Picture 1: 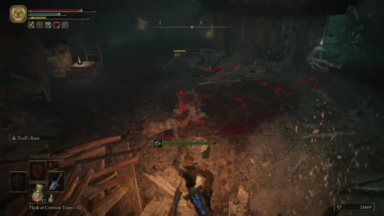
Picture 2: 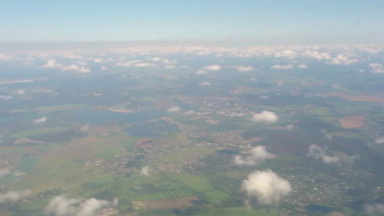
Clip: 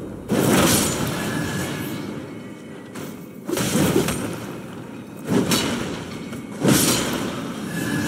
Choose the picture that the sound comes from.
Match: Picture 1